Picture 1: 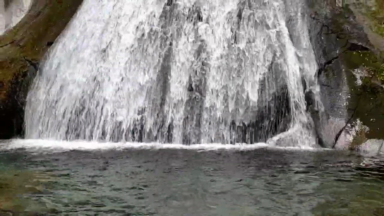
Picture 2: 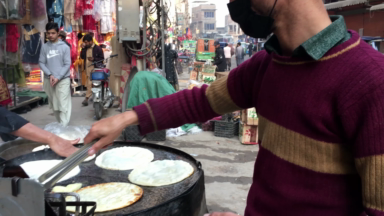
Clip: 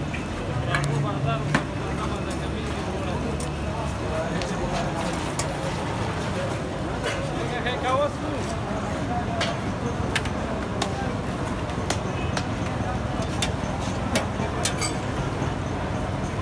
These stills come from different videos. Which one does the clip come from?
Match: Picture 2